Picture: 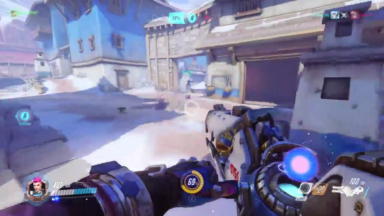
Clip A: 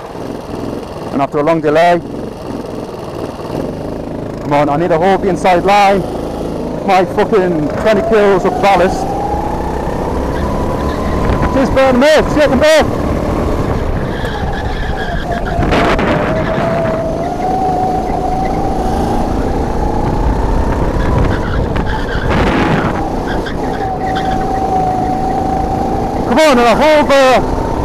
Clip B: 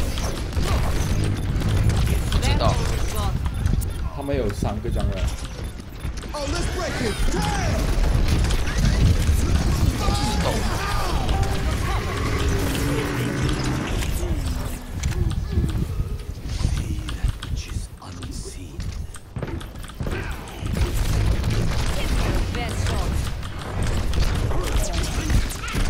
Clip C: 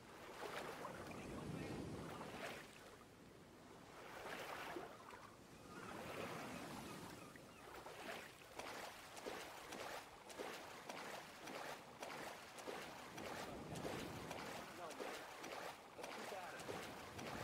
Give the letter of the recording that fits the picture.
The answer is B